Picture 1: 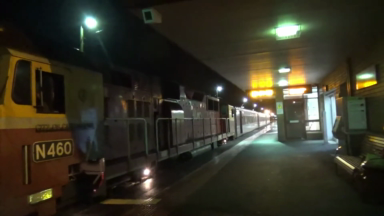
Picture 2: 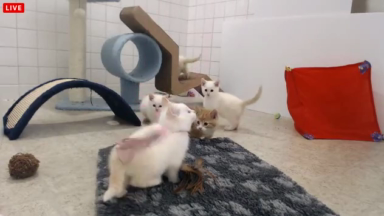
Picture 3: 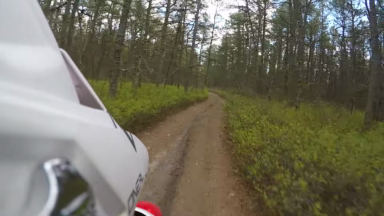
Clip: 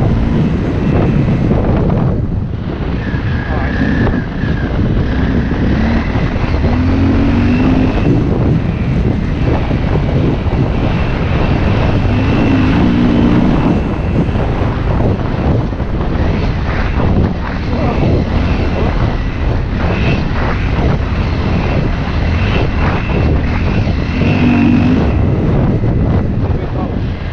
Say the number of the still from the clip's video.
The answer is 3